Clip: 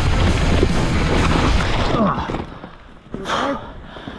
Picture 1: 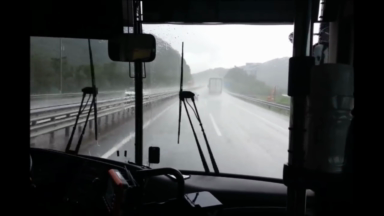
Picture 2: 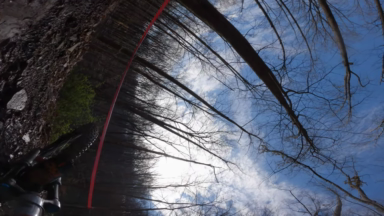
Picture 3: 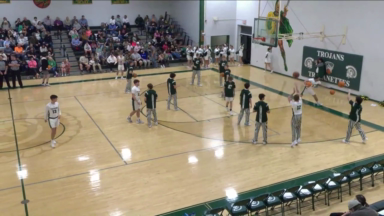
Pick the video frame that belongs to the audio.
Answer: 2